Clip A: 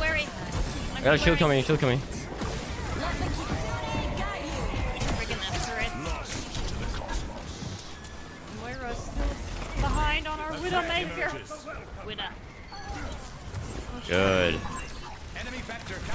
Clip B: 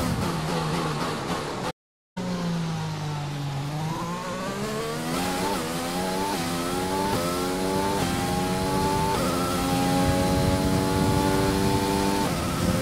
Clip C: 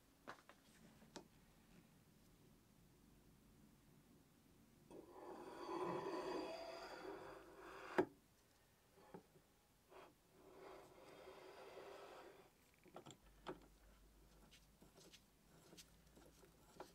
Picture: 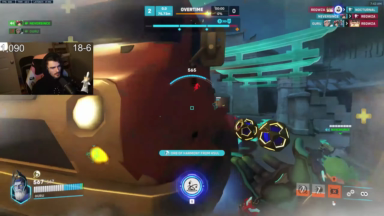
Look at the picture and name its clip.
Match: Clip A